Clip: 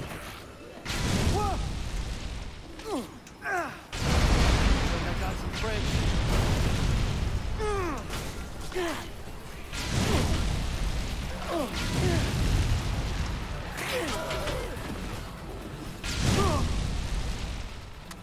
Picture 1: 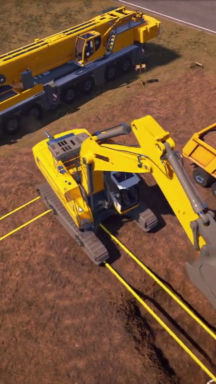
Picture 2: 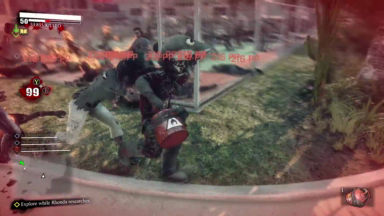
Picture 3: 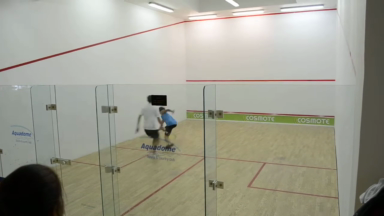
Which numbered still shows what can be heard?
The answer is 2